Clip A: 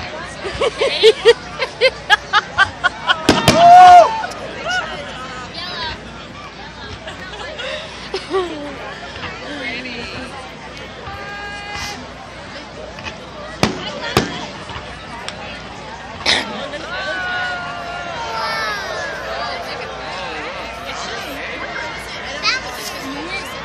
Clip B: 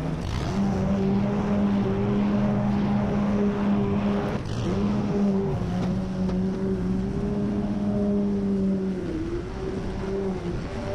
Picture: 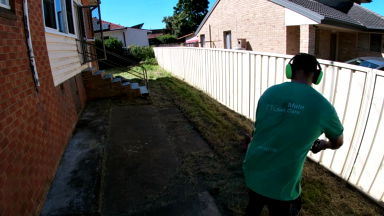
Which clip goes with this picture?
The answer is B